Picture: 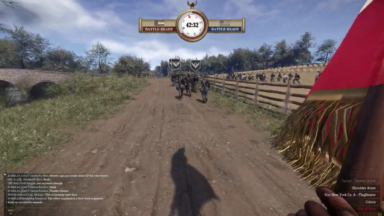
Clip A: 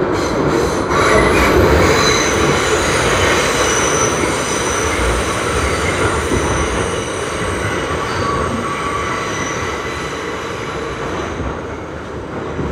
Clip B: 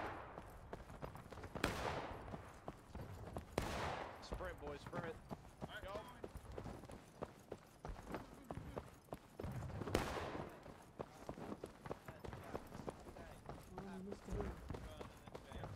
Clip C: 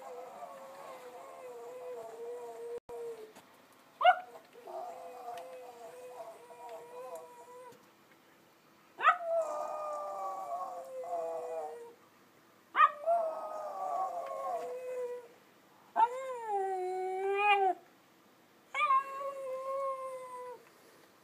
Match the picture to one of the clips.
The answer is B